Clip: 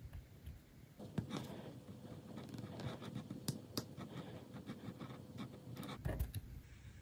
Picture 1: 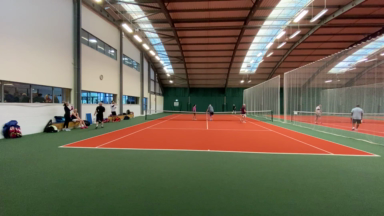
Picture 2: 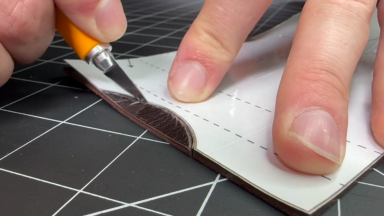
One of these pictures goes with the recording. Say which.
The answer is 2